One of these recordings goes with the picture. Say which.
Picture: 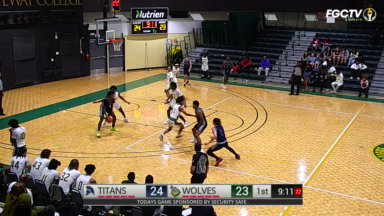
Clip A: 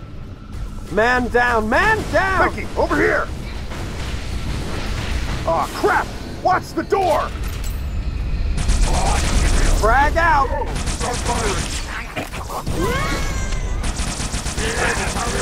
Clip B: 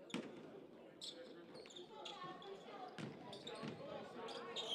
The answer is B